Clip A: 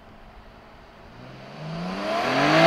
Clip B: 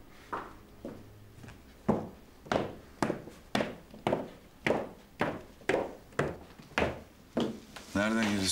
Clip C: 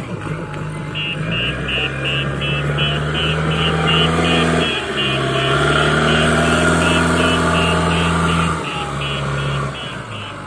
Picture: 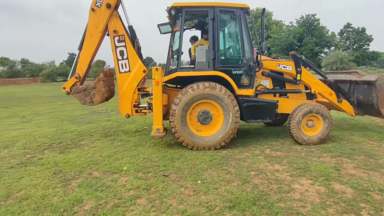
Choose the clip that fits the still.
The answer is C